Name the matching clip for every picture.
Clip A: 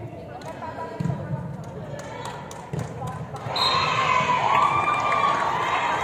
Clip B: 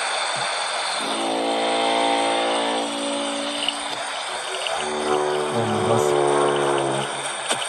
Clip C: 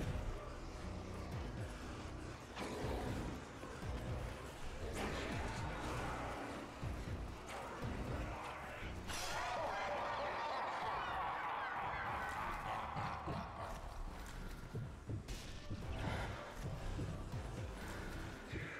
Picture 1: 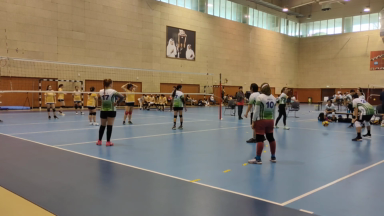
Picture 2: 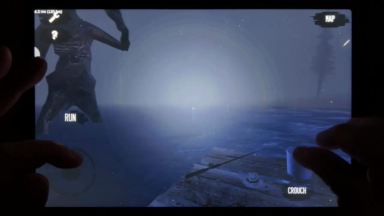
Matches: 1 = A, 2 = B